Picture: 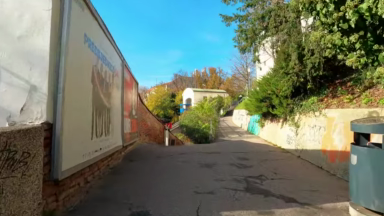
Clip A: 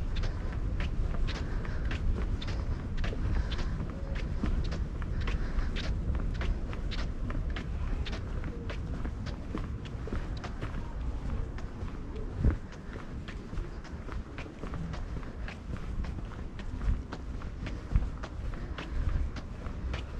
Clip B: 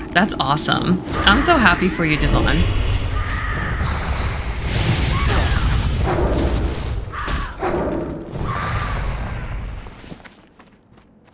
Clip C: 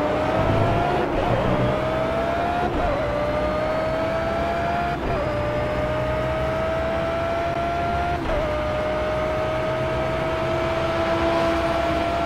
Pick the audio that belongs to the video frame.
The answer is A